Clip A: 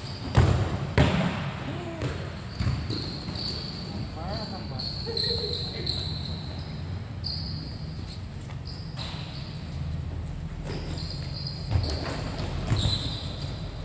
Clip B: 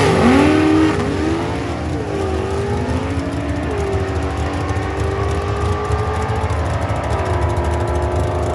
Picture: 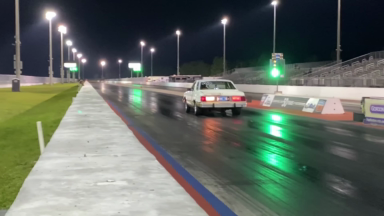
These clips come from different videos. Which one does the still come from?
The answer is B